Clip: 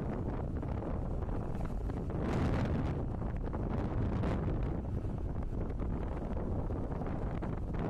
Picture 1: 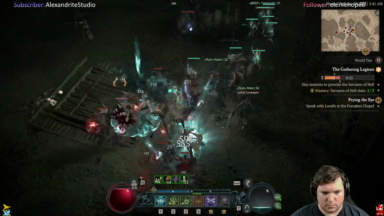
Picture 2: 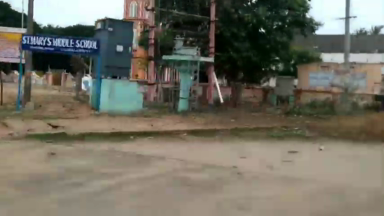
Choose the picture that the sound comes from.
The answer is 2